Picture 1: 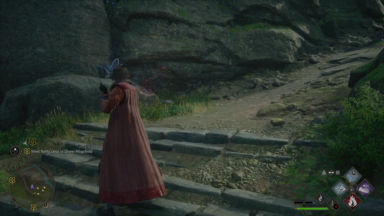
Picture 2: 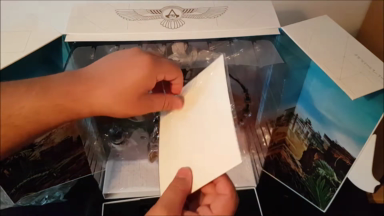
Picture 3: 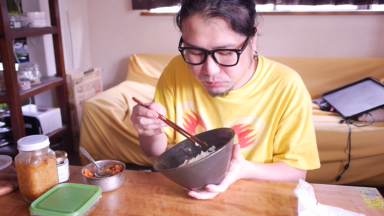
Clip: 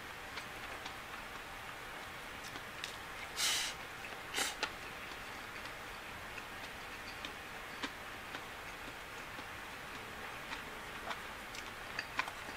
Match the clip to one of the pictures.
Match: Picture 3